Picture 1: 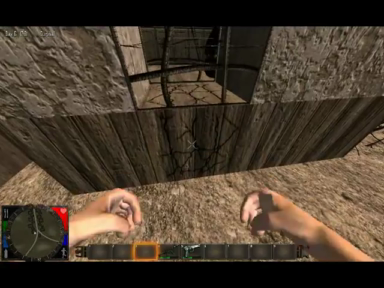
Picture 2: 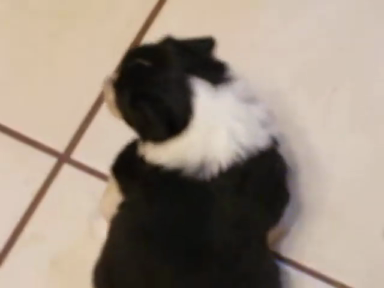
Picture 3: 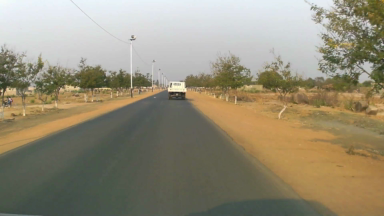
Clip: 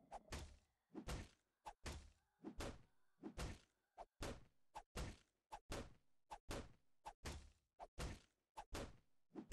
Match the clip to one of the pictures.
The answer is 1